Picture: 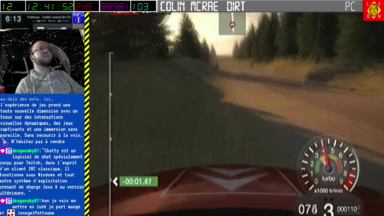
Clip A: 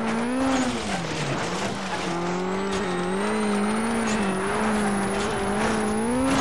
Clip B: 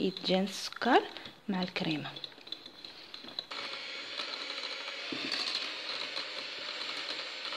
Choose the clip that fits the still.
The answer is A